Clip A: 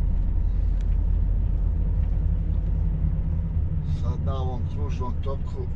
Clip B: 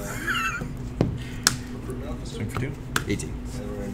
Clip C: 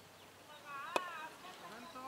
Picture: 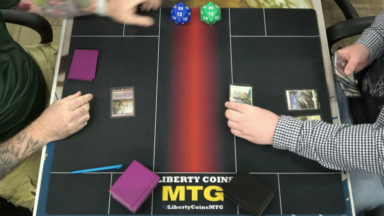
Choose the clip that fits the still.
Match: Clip B